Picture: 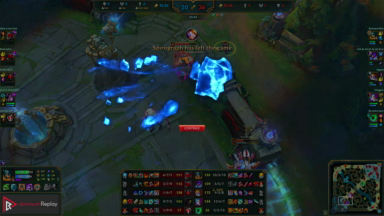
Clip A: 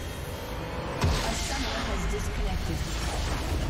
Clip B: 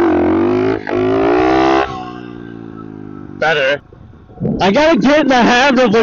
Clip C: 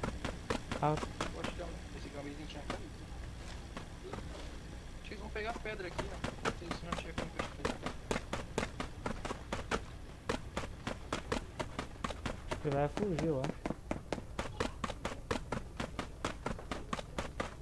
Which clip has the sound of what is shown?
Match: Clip A